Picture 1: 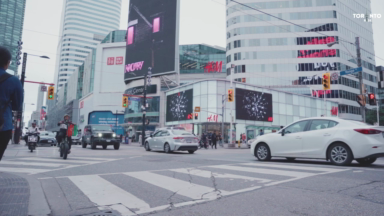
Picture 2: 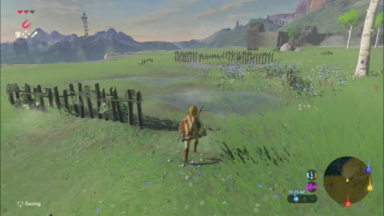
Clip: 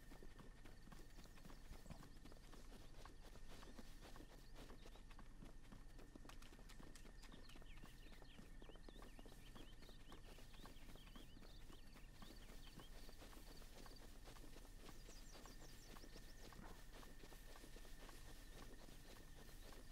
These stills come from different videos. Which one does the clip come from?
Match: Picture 2